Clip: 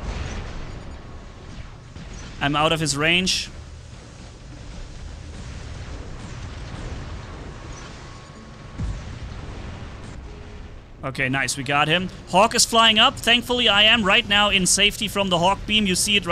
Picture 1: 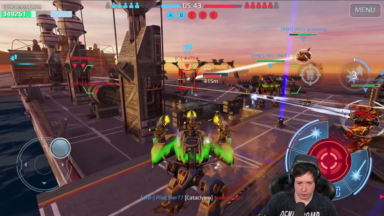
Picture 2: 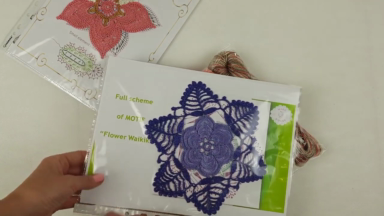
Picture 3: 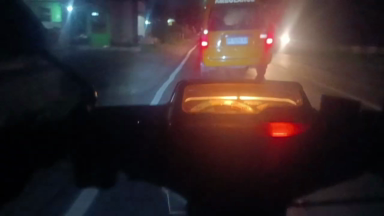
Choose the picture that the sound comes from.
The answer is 1